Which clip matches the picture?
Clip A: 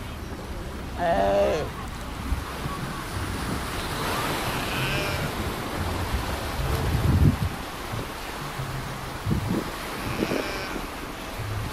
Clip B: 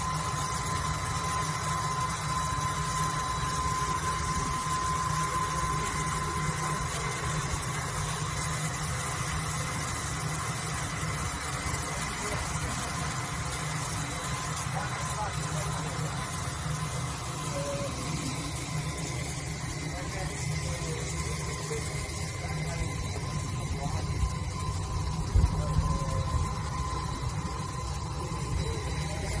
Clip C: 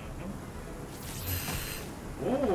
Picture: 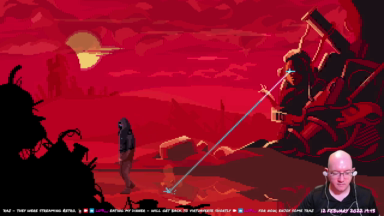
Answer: C